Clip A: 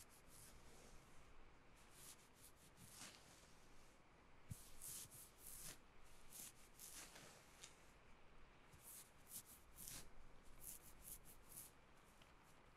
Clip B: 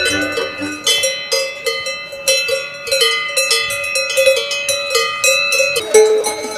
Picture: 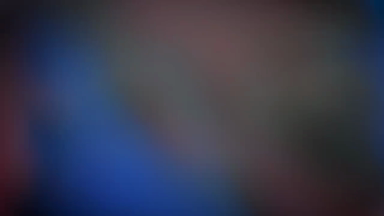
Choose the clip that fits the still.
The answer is A